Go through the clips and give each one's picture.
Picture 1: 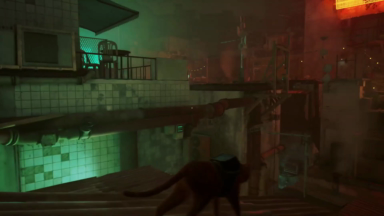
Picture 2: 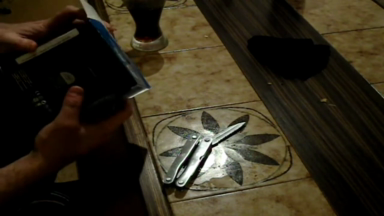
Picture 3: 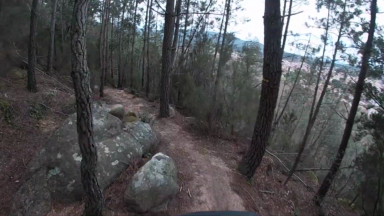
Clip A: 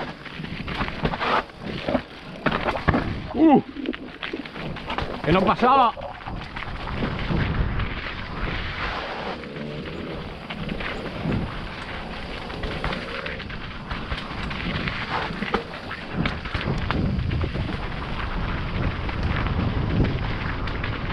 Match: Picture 3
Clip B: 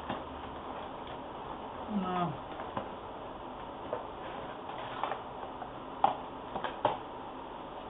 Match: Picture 2